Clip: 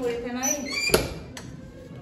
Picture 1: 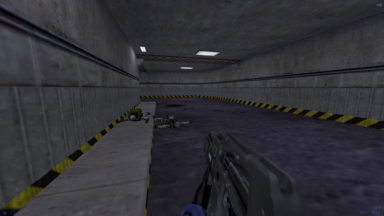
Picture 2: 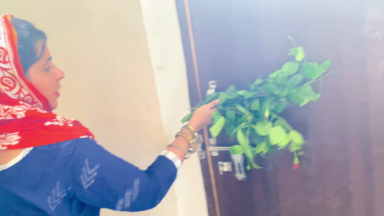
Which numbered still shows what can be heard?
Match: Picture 2